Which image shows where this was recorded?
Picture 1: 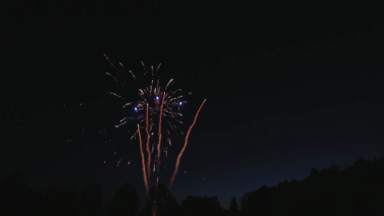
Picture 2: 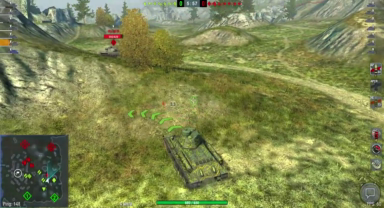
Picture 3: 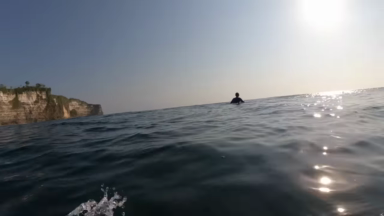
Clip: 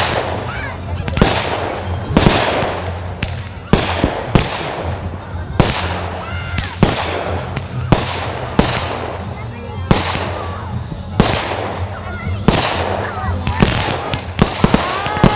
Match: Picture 1